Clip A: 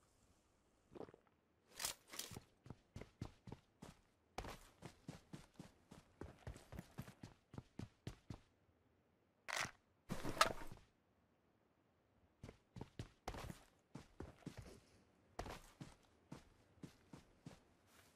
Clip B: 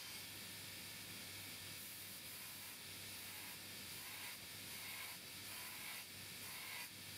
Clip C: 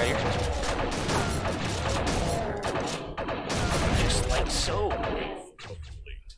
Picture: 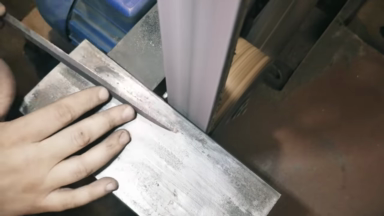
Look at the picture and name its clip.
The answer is B